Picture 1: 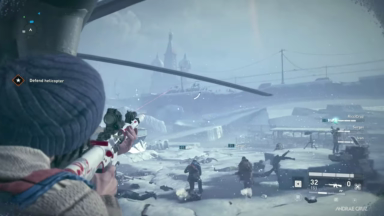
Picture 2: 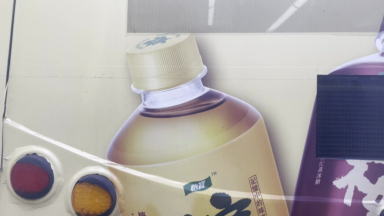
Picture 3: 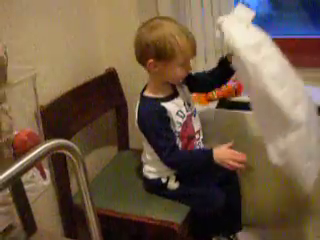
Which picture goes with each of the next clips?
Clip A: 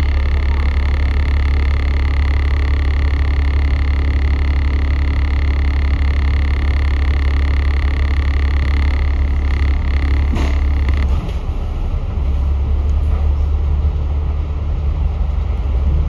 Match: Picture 2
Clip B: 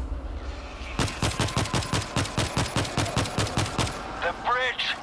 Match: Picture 1